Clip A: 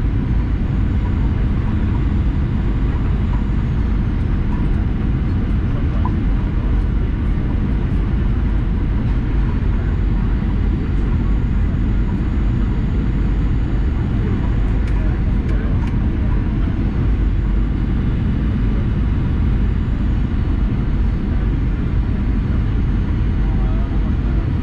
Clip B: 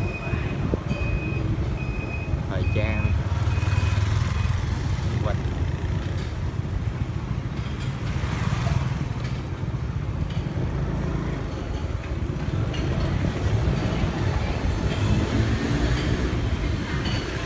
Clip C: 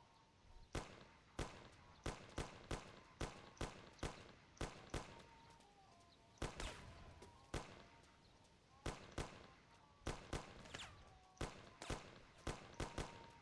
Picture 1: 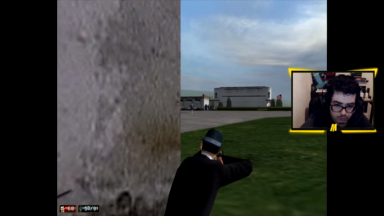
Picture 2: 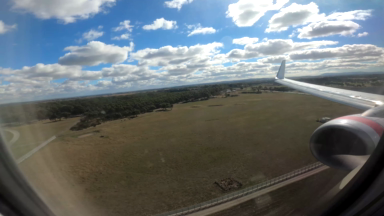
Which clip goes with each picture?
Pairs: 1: C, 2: A